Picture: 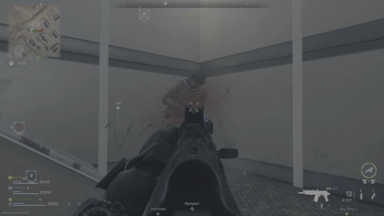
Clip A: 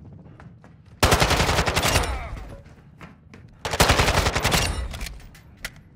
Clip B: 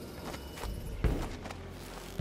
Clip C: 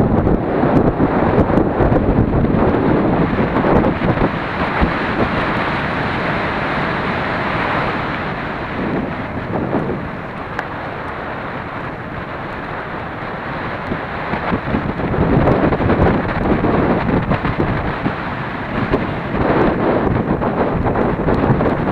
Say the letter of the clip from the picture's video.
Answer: A